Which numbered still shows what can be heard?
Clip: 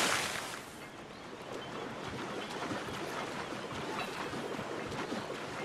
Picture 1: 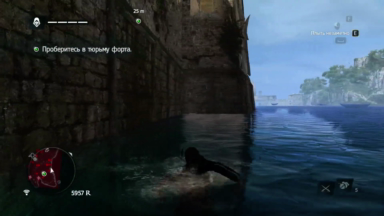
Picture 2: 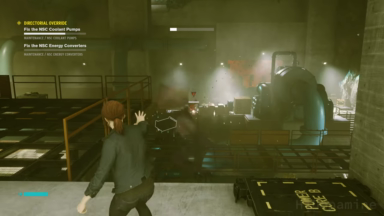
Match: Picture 1